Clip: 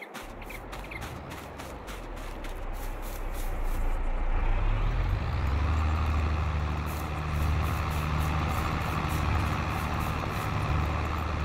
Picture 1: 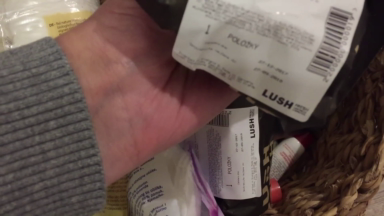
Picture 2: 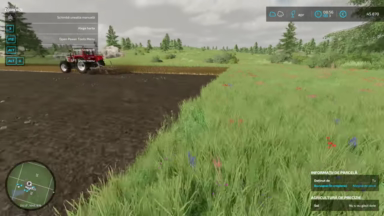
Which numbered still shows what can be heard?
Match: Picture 2